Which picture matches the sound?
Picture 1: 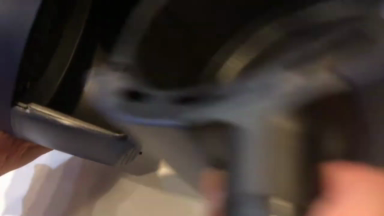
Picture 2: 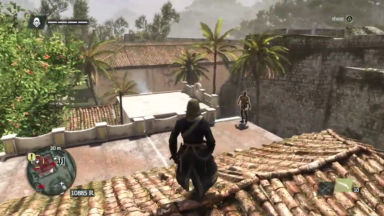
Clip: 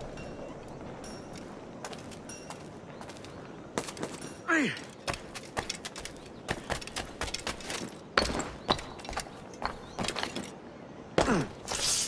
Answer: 2